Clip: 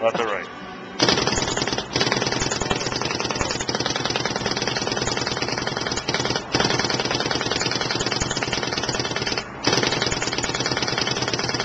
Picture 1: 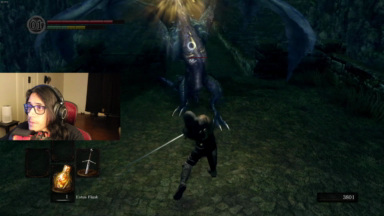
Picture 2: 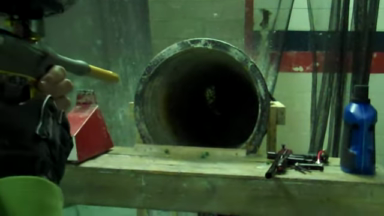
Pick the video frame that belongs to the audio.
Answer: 2